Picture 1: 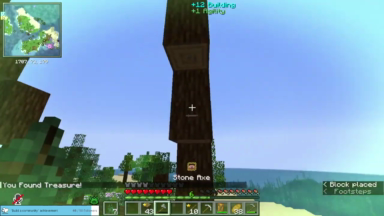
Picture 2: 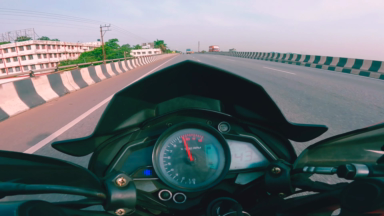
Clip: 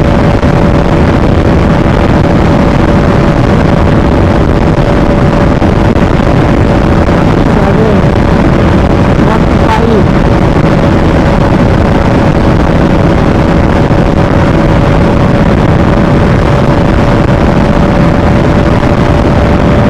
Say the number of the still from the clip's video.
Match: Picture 2